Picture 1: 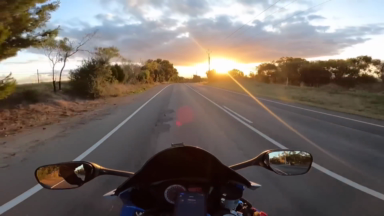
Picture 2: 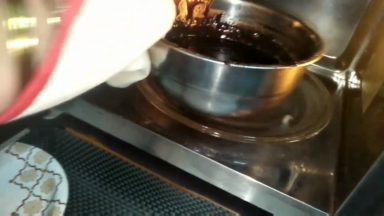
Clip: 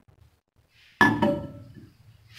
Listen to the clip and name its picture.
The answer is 2